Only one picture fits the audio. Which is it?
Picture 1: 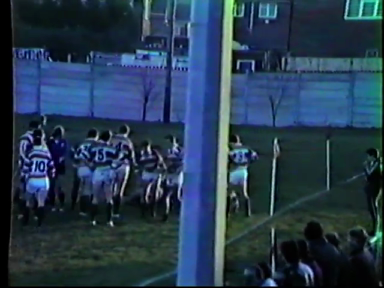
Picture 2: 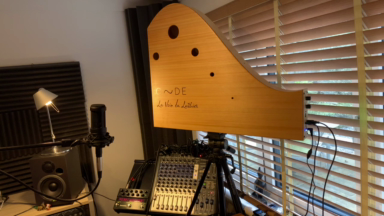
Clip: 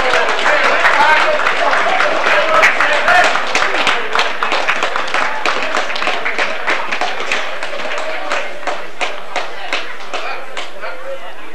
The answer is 1